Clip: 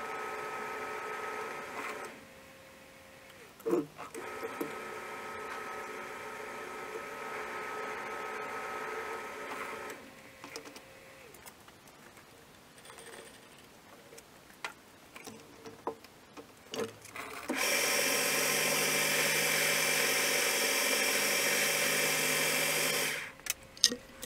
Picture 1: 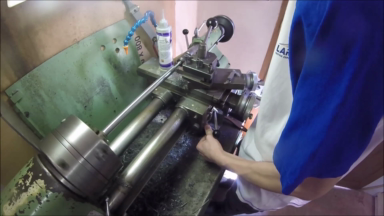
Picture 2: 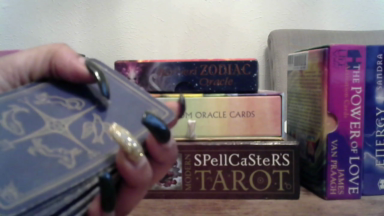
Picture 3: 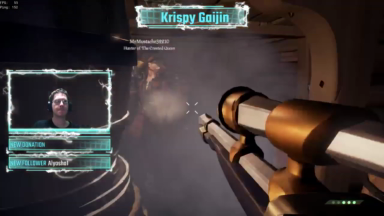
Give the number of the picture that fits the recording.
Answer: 1